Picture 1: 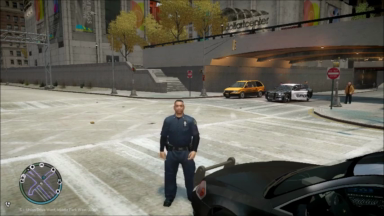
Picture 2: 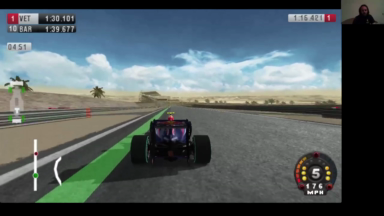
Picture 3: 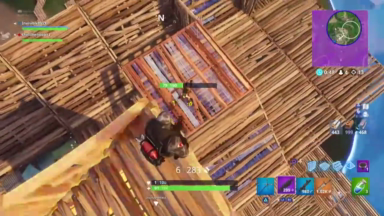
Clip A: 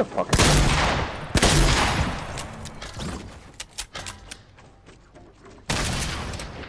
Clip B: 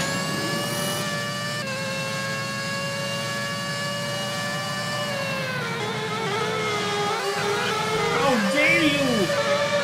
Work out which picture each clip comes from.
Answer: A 3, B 2